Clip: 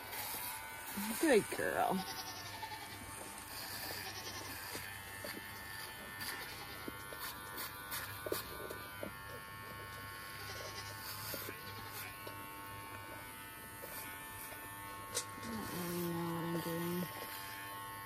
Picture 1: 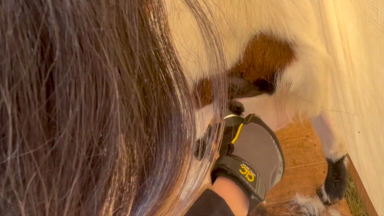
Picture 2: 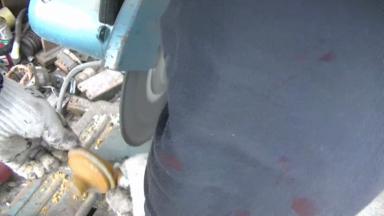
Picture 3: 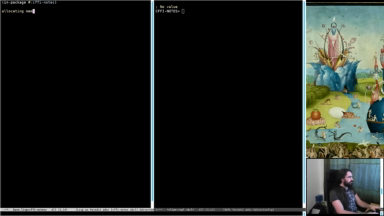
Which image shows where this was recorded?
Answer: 1